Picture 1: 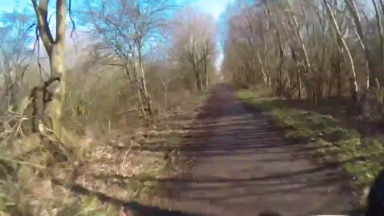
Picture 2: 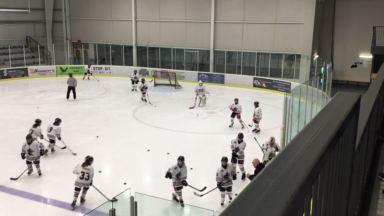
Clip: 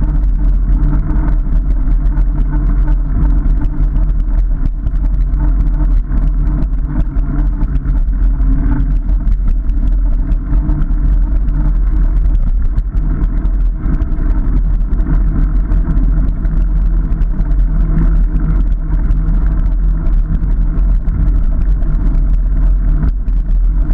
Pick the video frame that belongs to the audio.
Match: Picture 1